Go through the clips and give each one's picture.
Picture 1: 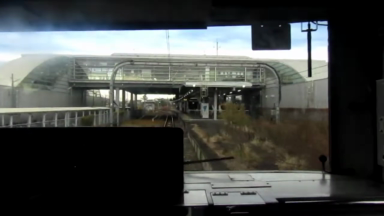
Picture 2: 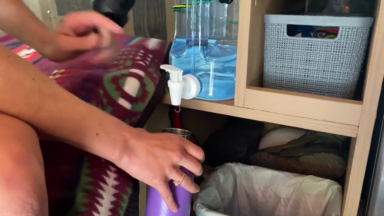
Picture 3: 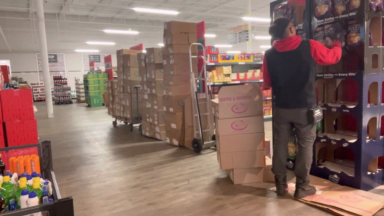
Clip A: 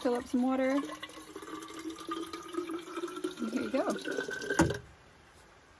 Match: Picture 2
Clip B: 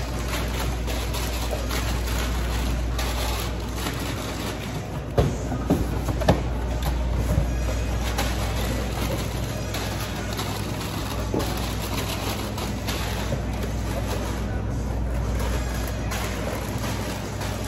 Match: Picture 3